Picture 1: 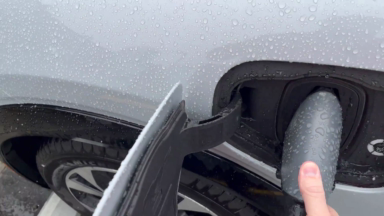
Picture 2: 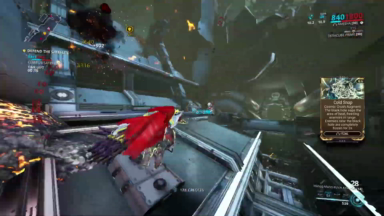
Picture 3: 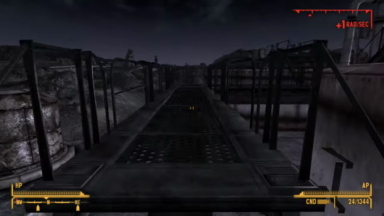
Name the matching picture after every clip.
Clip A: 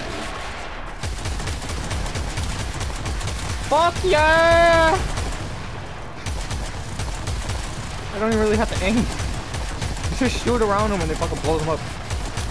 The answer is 2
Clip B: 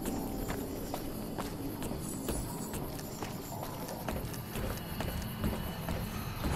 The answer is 3